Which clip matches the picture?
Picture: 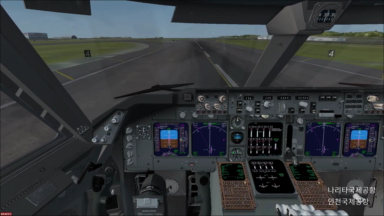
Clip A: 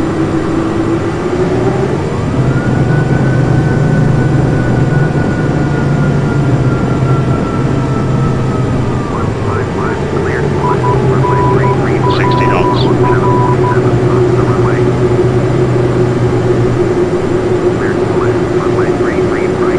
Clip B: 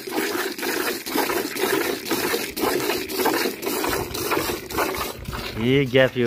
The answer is A